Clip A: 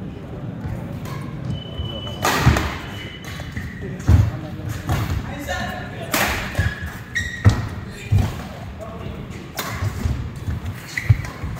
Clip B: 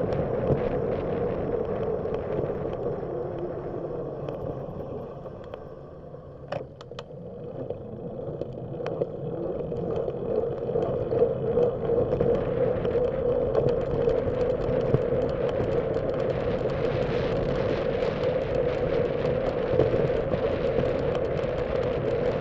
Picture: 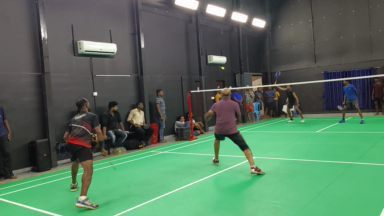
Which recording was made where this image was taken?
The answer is A